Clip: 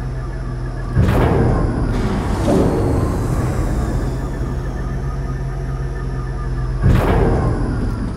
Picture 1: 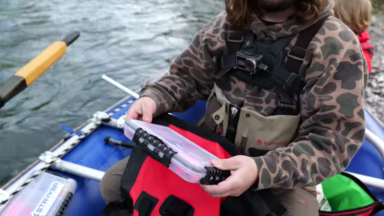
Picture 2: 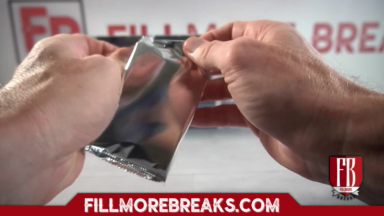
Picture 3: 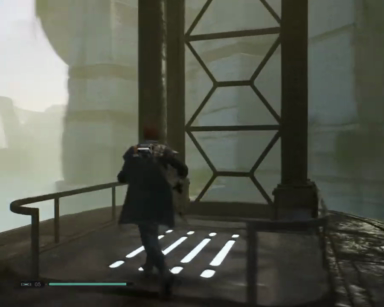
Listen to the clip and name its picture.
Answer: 3